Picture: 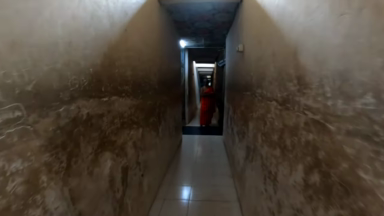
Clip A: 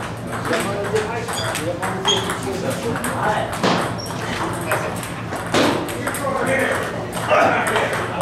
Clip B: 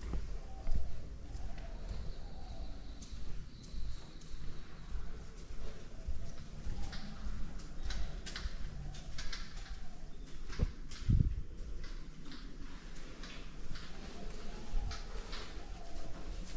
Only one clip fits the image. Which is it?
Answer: B